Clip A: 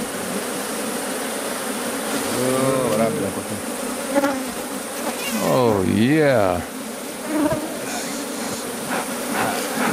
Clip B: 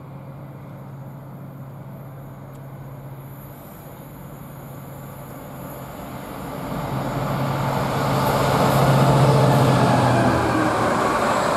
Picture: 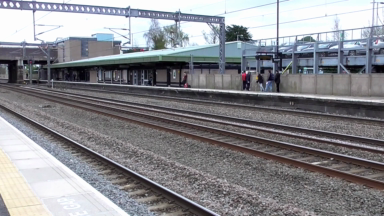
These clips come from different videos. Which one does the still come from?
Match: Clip B